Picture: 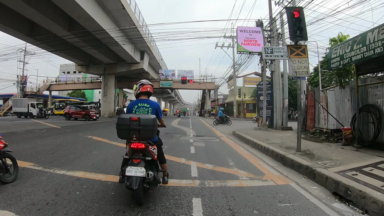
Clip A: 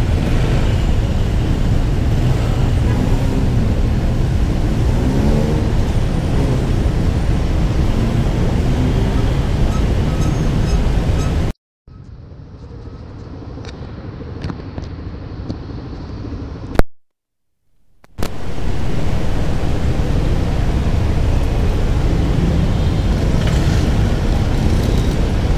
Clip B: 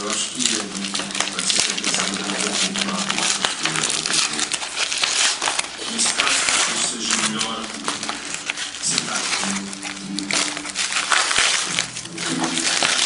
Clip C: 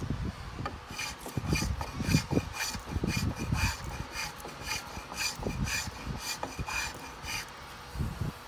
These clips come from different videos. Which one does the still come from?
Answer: A